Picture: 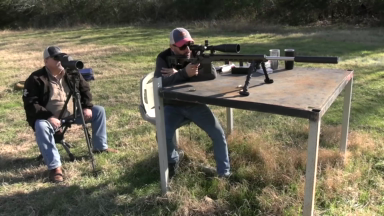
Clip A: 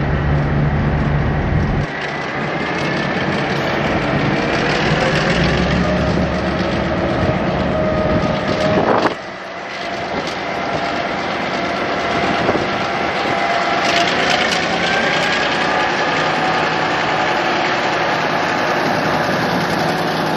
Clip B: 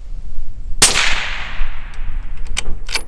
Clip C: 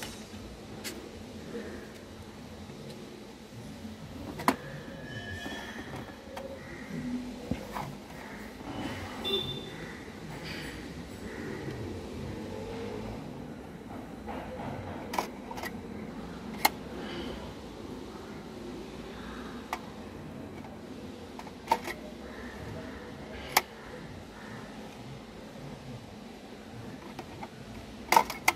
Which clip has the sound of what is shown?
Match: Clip B